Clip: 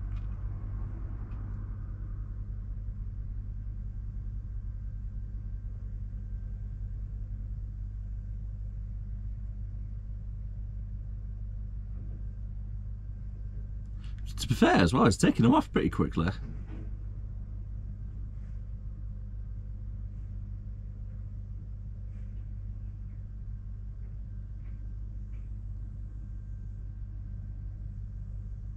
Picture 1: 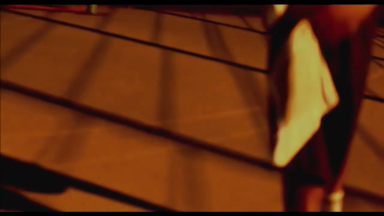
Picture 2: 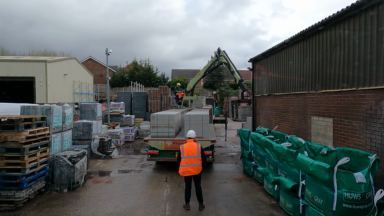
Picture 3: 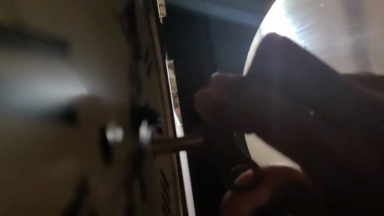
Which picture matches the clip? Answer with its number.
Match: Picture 2